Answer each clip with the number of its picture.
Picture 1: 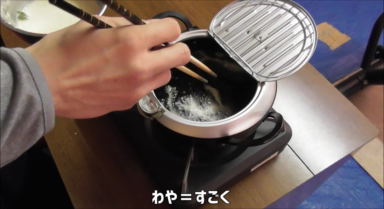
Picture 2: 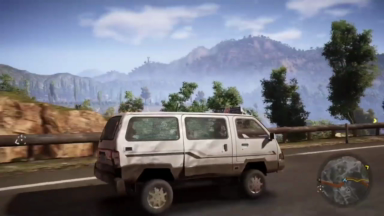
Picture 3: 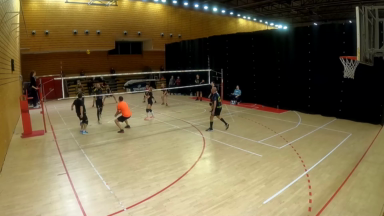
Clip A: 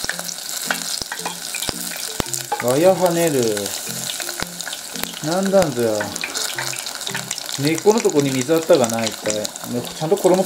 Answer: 1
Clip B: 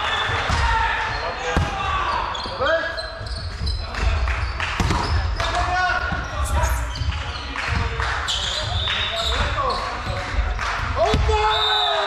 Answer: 3